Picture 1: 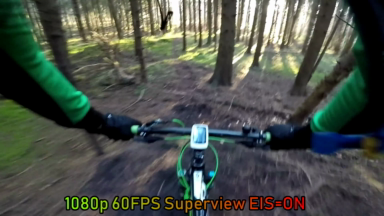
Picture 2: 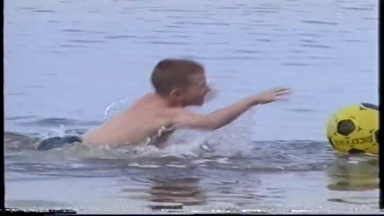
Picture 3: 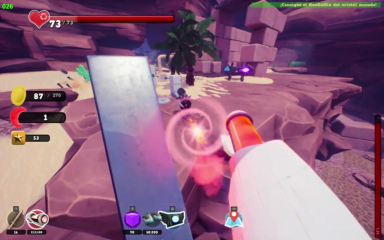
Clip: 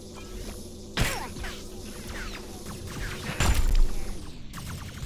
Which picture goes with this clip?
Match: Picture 3